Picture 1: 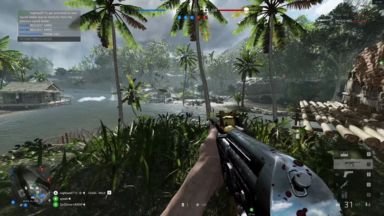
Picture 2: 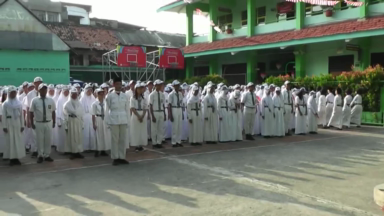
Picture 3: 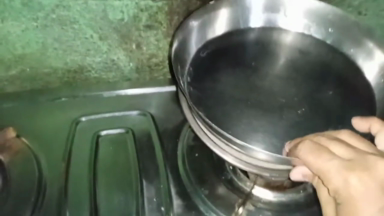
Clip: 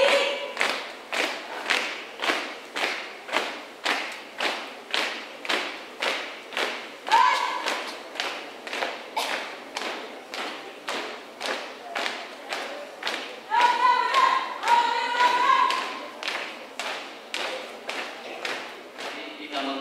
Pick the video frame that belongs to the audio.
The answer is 2